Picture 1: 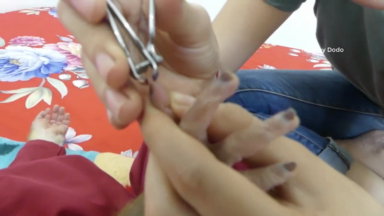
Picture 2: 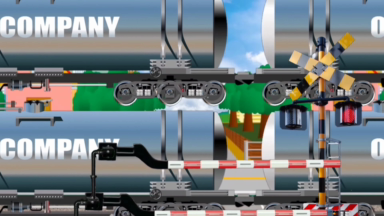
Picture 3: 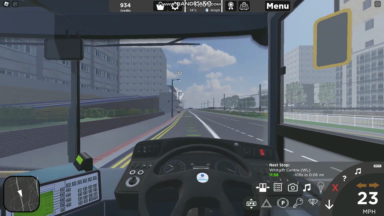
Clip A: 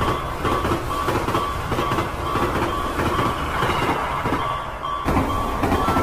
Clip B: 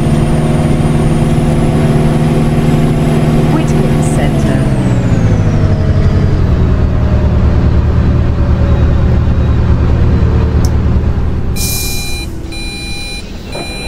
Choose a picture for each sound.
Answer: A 2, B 3